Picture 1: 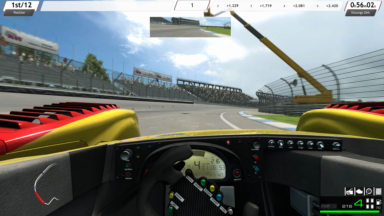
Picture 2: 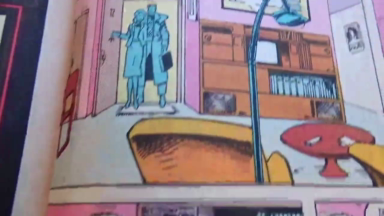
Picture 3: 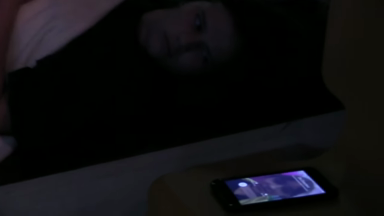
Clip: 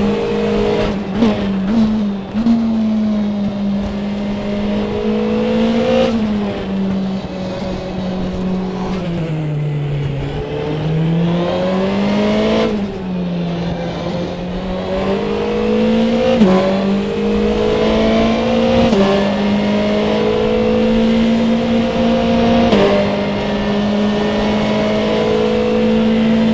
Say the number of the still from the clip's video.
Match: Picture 1